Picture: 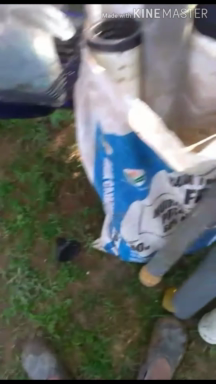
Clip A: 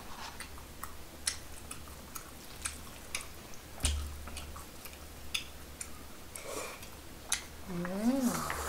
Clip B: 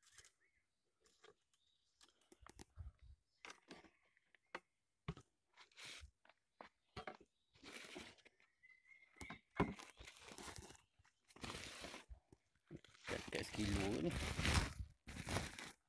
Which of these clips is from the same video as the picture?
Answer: B